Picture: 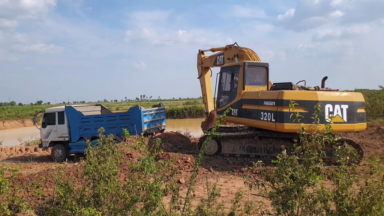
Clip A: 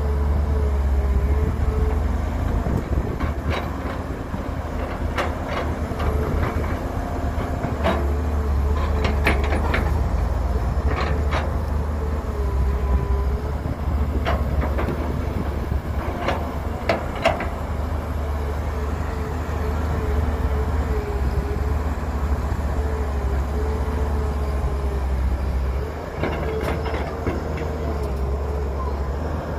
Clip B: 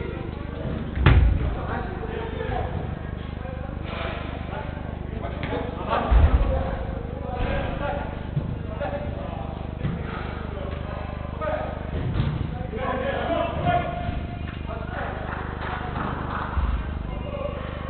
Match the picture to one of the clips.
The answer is A